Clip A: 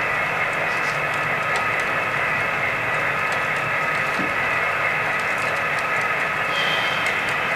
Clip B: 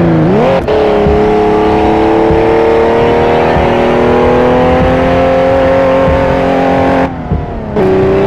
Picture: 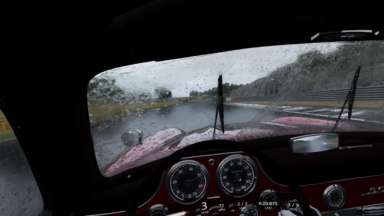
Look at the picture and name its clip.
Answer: B